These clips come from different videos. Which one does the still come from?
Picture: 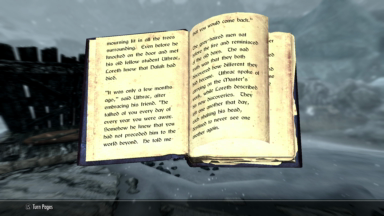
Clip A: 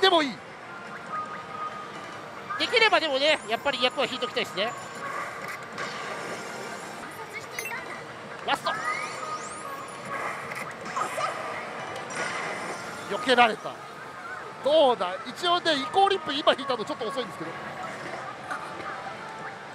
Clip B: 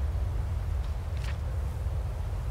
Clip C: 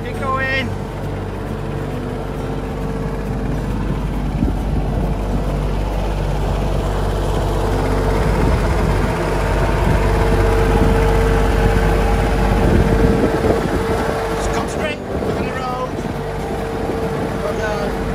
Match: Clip B